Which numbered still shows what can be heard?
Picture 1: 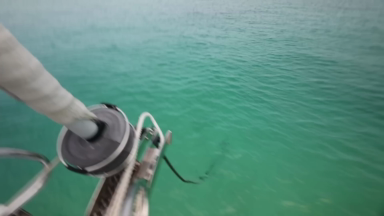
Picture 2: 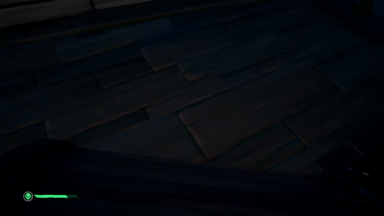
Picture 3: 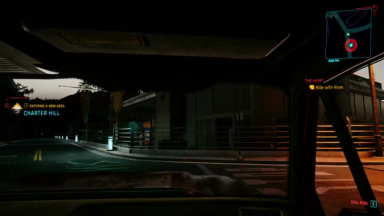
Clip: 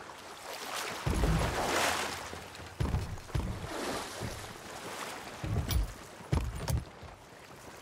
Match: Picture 2